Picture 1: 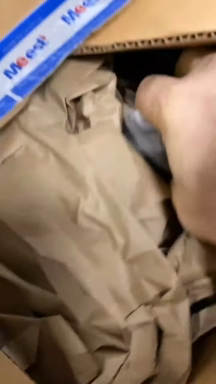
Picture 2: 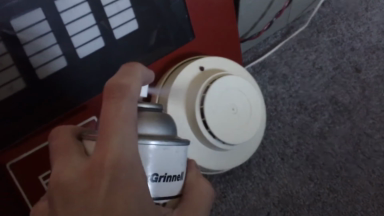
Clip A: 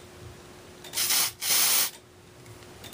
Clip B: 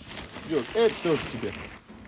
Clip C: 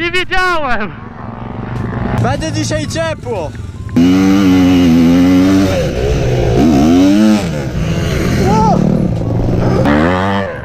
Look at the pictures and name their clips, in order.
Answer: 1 B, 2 A